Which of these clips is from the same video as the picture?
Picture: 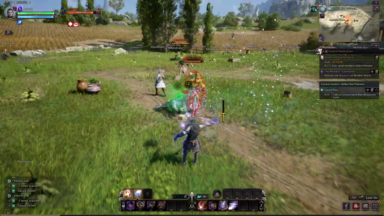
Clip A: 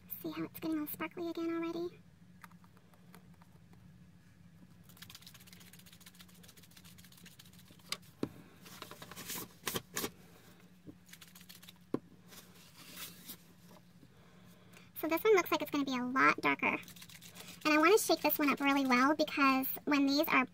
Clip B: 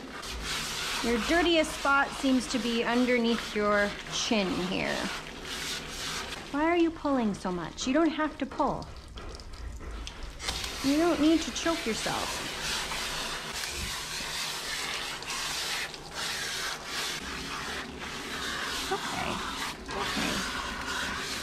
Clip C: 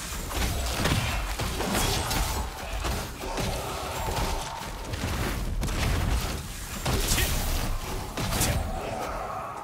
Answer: C